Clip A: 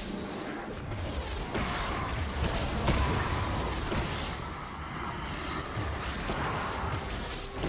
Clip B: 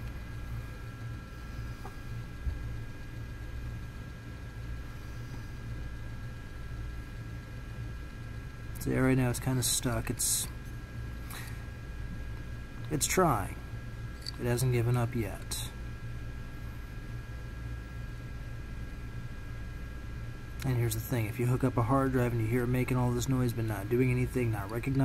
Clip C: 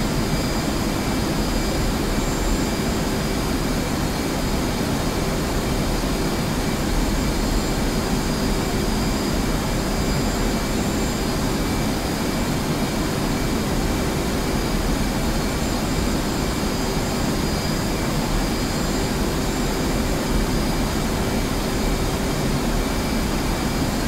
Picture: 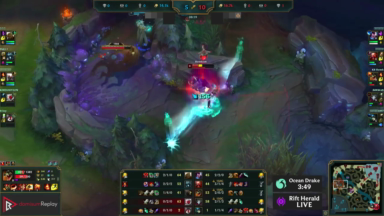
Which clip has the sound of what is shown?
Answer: A